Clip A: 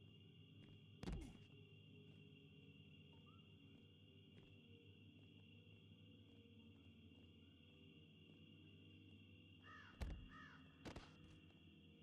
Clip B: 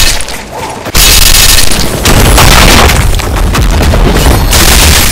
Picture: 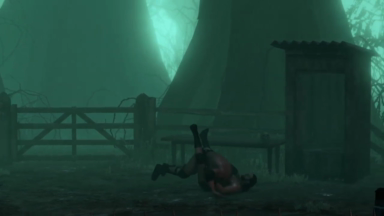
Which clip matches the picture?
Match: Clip A